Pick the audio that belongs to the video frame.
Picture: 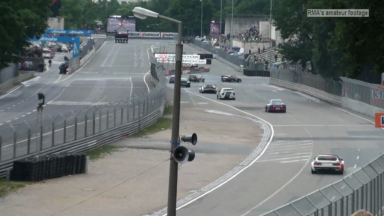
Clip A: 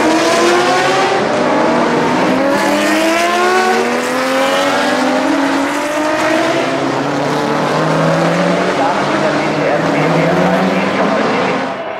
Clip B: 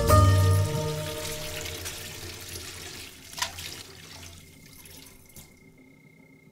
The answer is A